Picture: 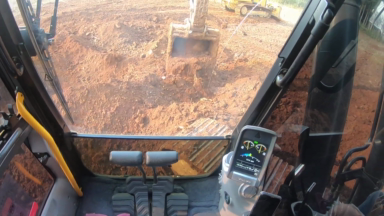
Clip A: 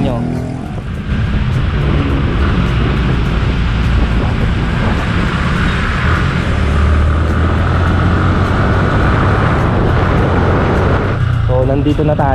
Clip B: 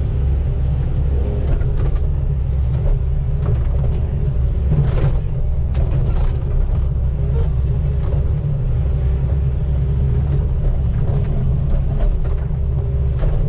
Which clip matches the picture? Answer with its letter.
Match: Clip B